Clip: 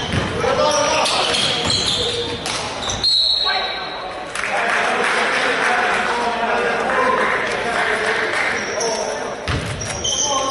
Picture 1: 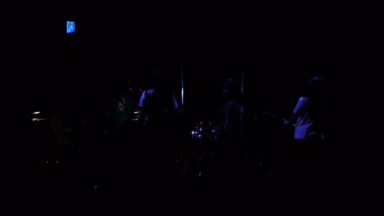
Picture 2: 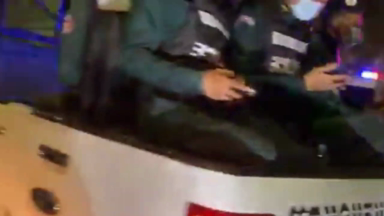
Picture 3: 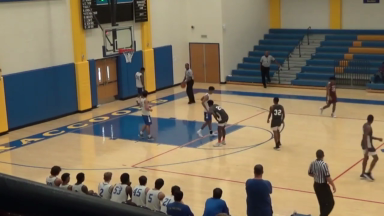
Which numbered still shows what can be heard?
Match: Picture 3